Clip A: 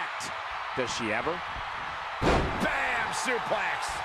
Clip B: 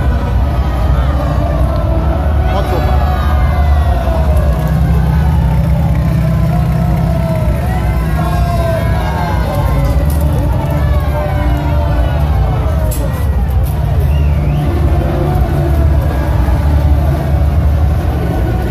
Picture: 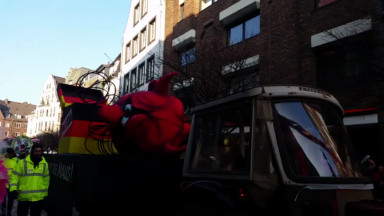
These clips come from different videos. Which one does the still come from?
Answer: B